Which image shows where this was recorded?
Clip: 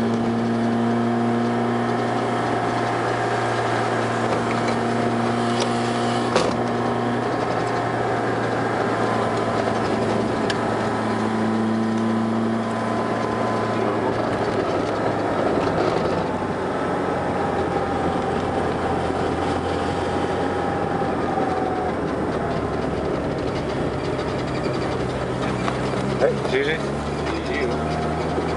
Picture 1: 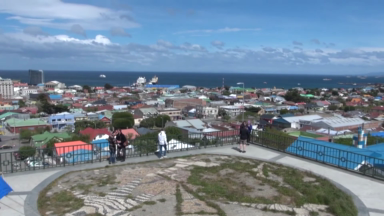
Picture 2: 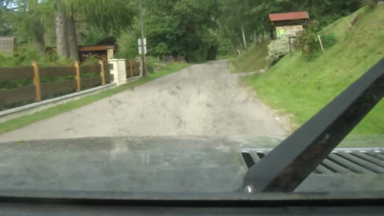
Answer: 2